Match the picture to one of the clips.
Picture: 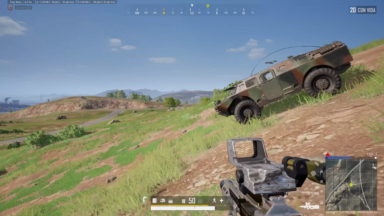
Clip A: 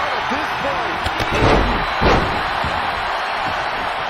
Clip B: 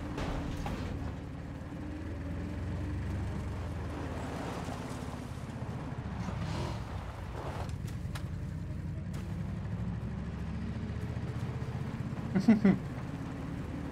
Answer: B